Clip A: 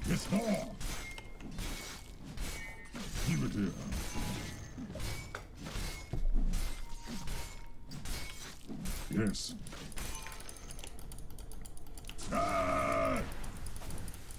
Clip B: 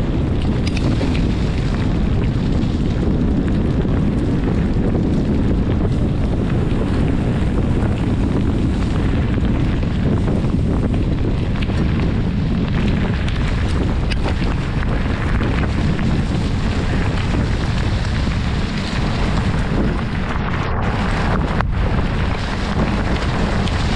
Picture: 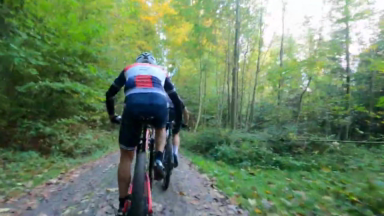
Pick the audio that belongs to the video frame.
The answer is B